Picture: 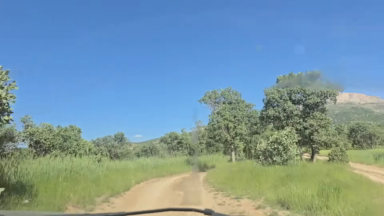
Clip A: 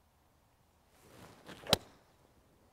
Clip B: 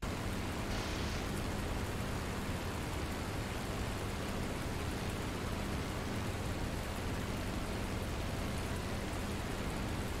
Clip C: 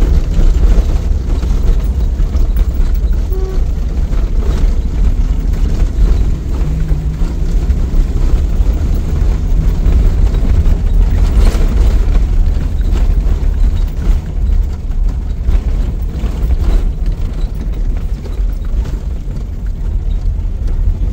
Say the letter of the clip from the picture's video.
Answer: C